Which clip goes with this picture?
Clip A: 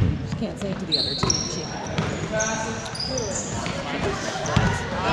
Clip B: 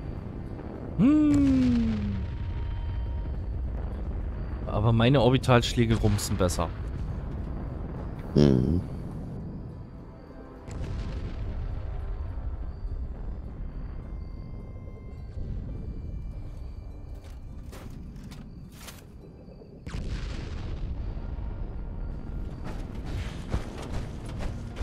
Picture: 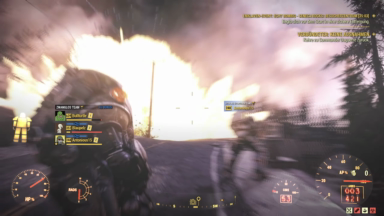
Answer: B